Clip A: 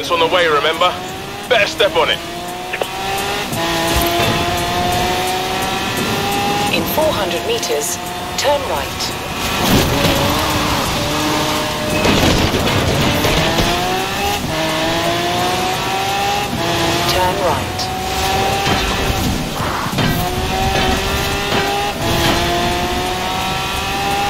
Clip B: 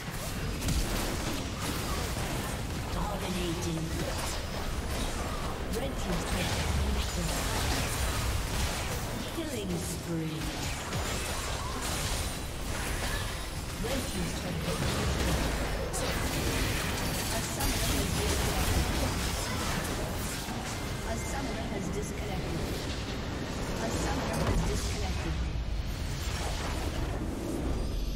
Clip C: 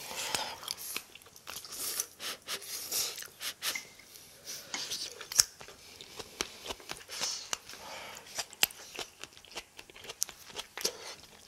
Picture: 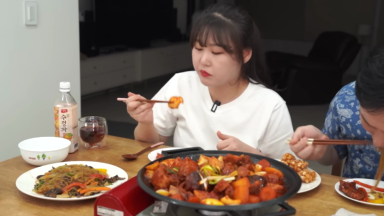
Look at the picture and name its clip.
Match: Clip C